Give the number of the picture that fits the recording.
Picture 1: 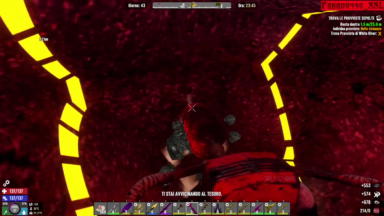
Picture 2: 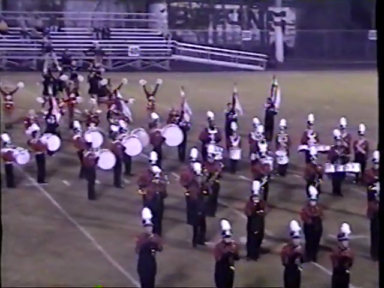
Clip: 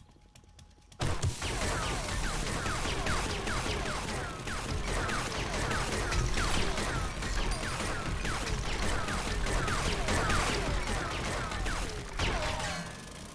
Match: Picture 1